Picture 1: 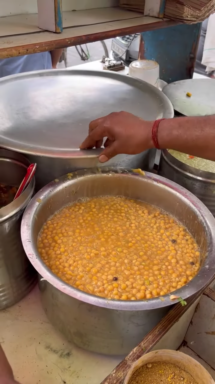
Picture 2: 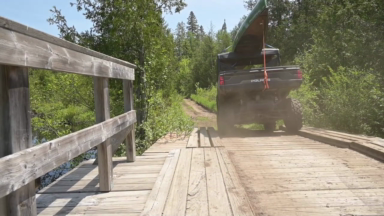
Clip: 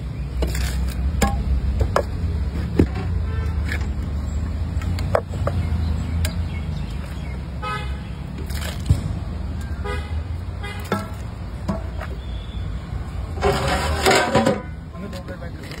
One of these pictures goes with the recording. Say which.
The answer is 1